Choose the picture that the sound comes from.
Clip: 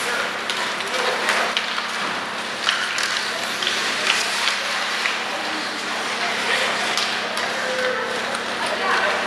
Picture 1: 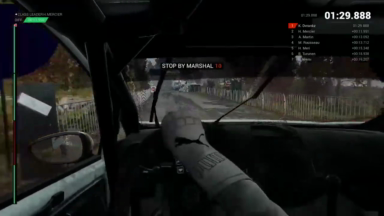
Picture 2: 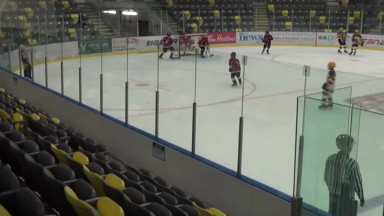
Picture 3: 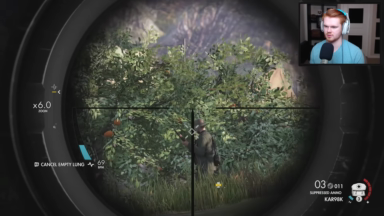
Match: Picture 2